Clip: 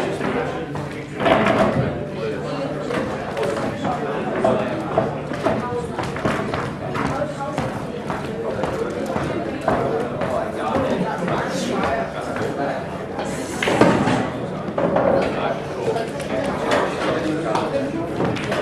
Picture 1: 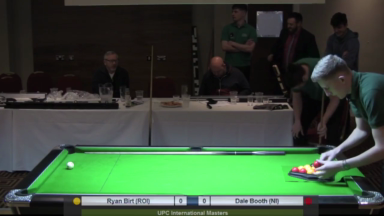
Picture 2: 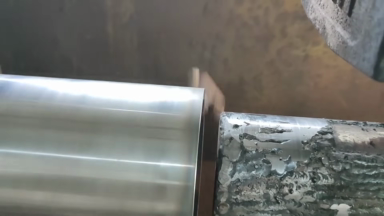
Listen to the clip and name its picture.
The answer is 1